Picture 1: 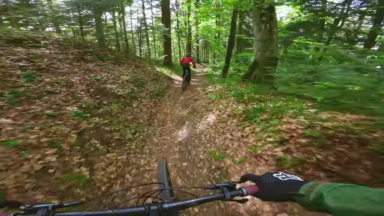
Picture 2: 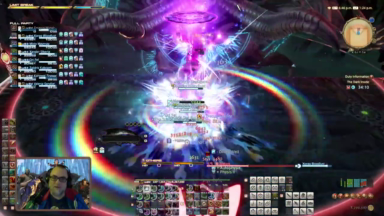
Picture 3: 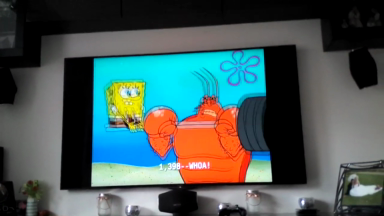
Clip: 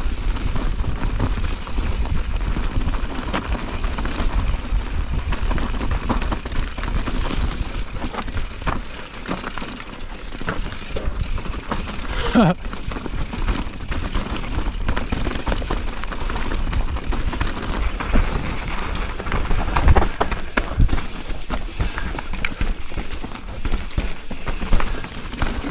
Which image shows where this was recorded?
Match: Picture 1